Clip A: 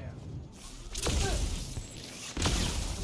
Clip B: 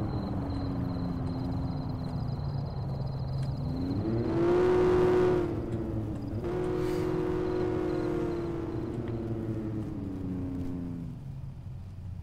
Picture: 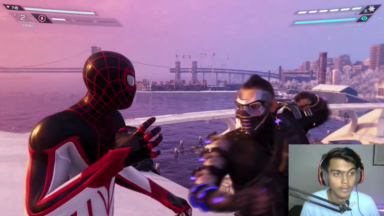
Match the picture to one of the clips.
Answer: A